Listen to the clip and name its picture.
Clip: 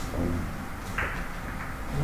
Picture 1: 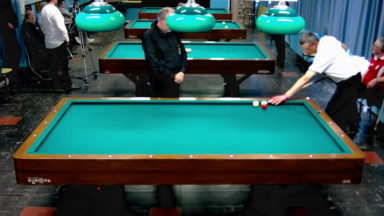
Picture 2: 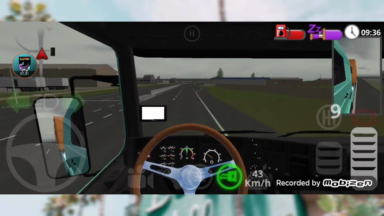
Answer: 1